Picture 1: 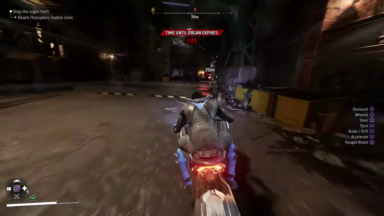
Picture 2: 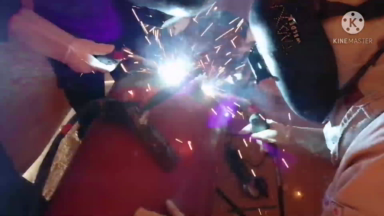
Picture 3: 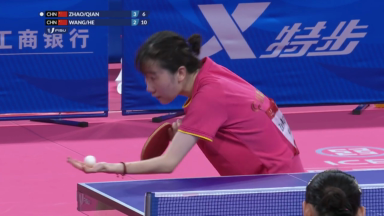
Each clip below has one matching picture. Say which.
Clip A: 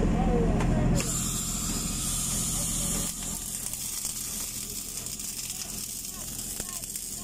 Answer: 2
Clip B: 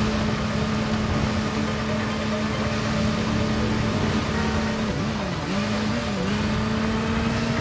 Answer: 1